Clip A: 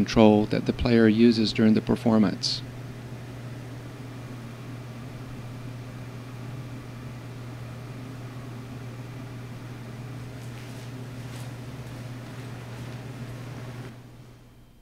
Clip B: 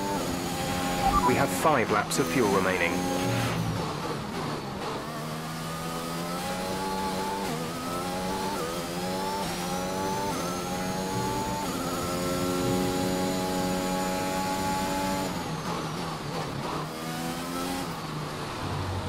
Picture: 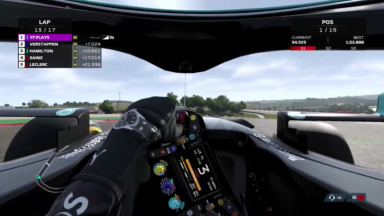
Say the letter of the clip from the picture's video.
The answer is B